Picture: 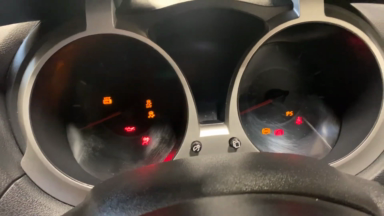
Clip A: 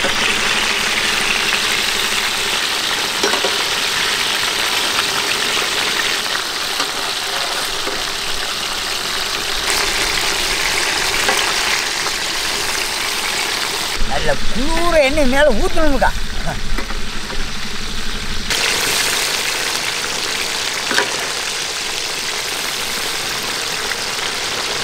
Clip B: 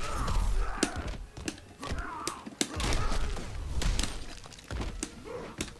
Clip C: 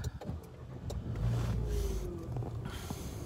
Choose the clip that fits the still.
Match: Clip C